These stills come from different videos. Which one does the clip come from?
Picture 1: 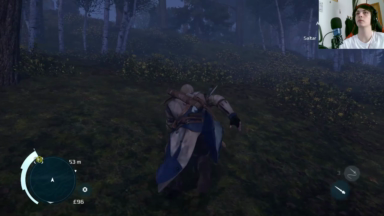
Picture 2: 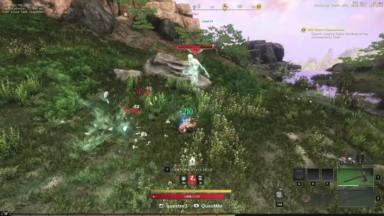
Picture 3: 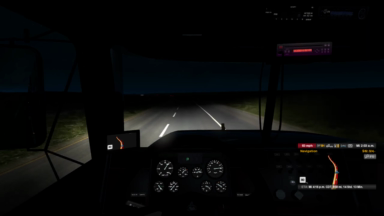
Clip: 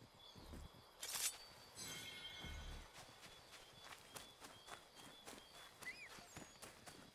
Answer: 1